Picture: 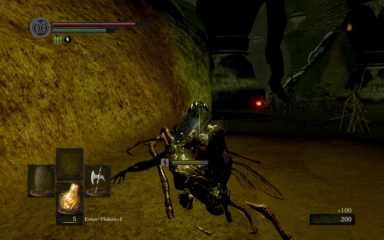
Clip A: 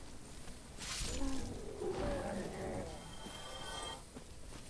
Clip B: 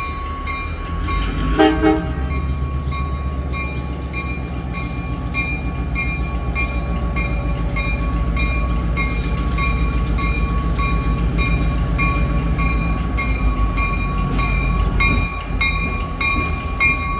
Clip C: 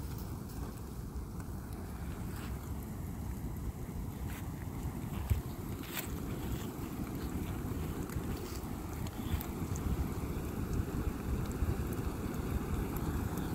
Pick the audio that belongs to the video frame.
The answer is A